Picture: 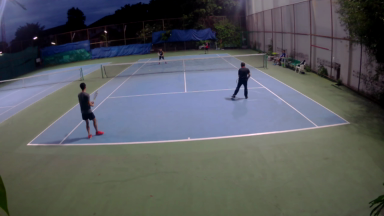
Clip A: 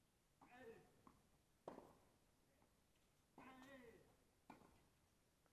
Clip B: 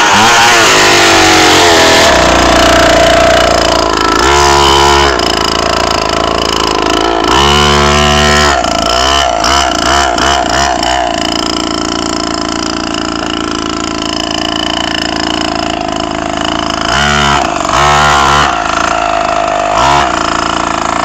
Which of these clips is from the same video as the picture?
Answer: A